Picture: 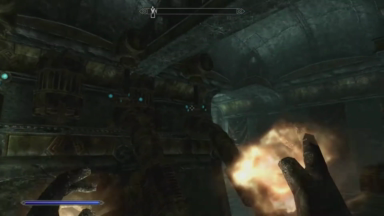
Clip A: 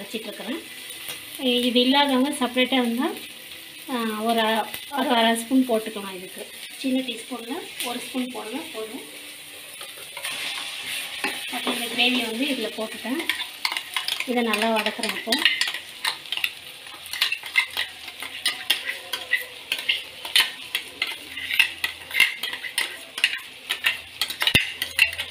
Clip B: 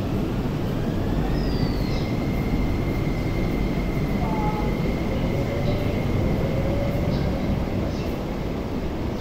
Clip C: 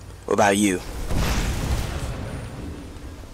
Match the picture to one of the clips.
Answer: C